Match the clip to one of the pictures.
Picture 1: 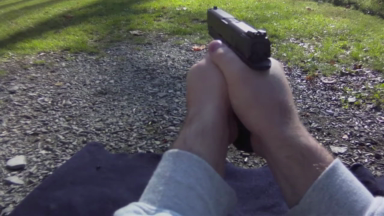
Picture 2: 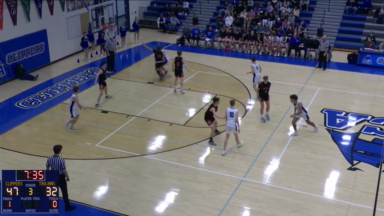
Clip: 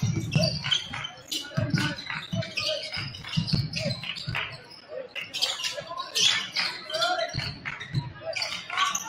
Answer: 2